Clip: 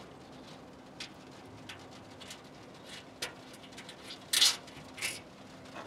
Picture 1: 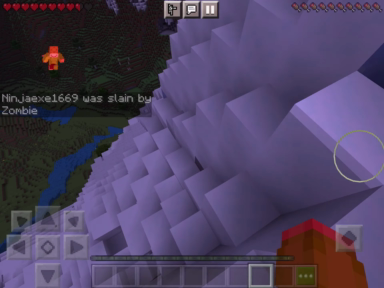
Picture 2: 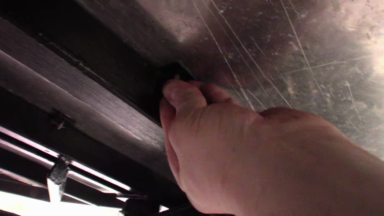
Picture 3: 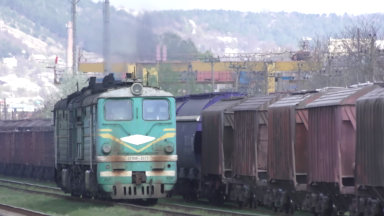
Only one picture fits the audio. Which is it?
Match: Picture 2